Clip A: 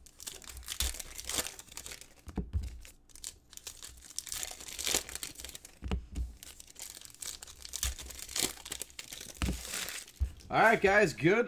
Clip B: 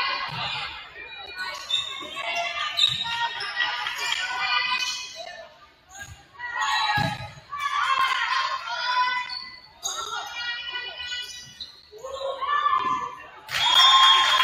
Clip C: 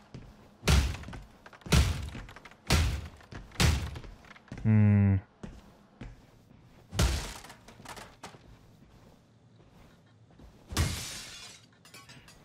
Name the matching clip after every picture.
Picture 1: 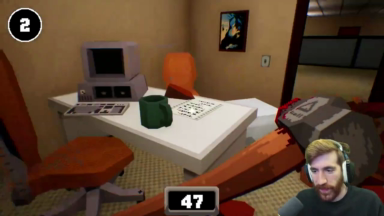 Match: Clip C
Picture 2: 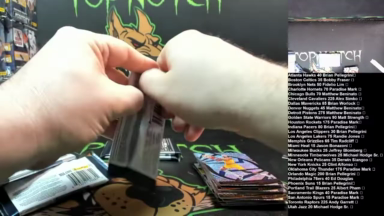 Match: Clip A